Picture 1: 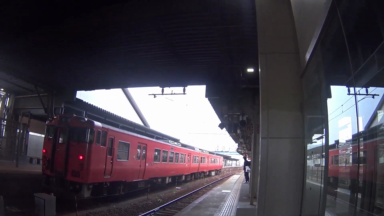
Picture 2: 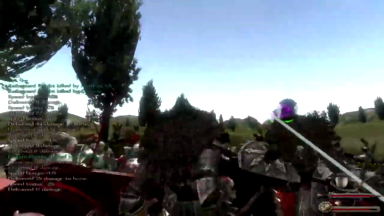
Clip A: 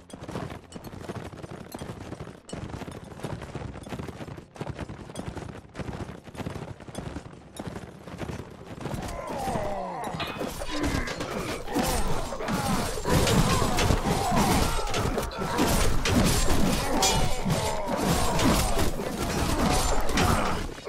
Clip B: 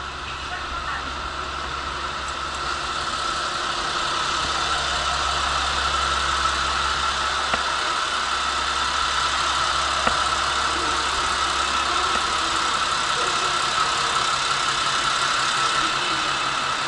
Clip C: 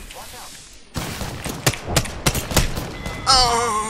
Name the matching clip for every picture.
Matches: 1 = B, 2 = A